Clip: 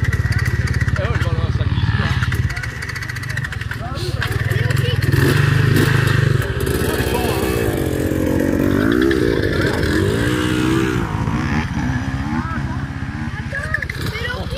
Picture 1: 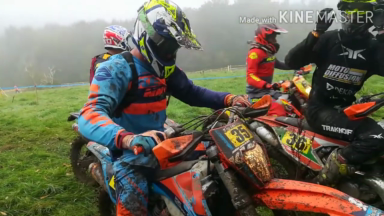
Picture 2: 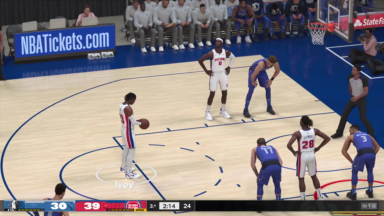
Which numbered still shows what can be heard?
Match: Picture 1